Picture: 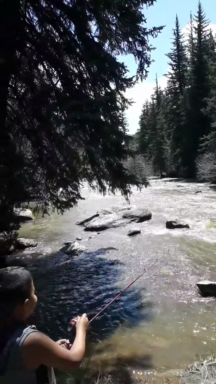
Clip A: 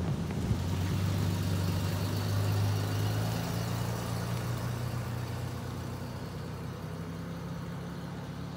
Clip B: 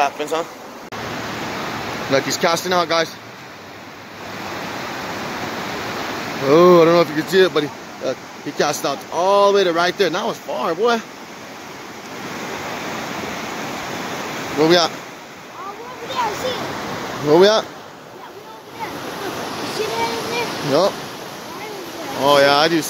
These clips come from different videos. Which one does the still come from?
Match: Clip B